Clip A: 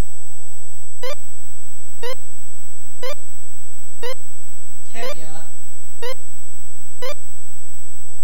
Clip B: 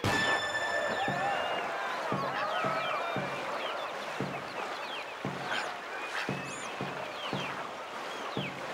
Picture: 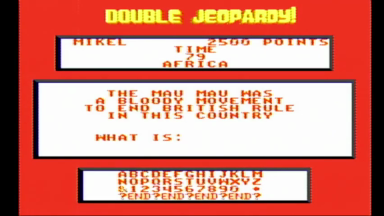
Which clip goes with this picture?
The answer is A